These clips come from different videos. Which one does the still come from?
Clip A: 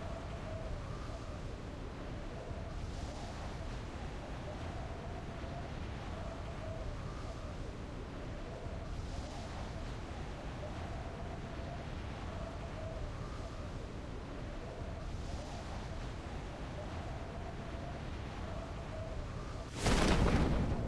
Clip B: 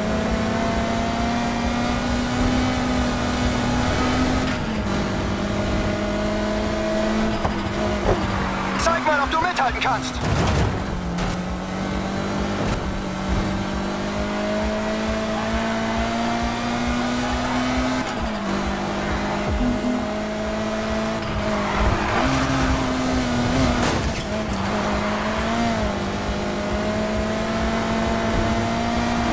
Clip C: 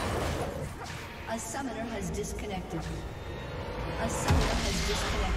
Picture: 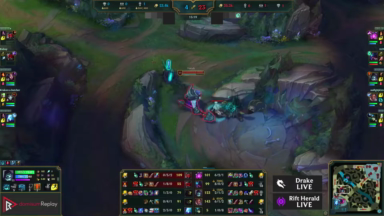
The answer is C